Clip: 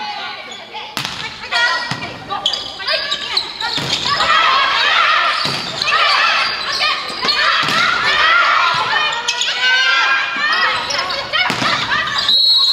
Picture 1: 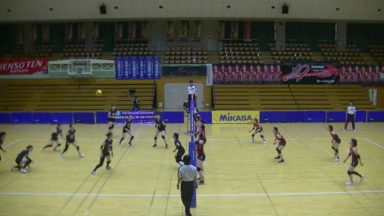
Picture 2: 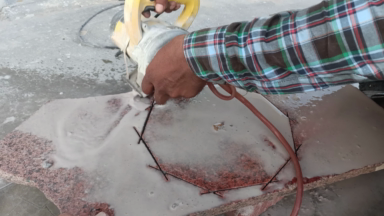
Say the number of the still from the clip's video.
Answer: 1